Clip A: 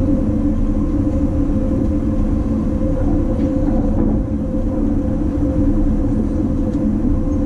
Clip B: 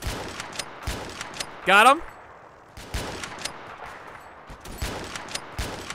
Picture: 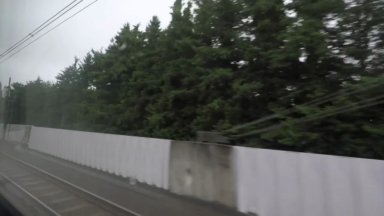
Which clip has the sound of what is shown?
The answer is A